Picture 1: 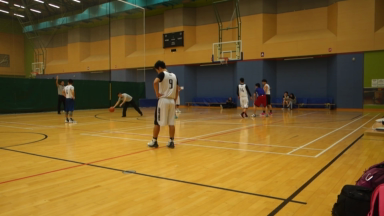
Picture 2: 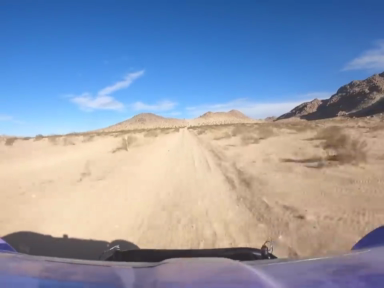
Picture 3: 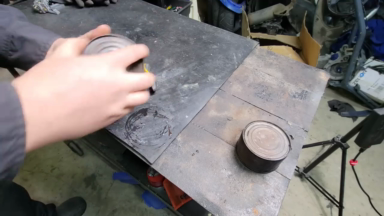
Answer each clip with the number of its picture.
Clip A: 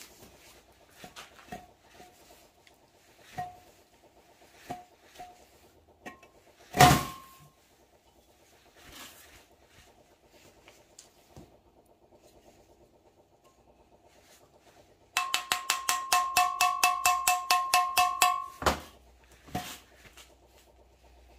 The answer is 3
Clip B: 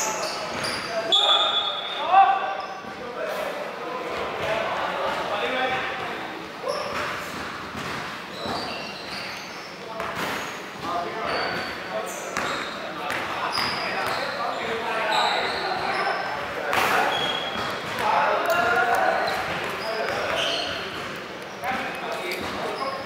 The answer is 1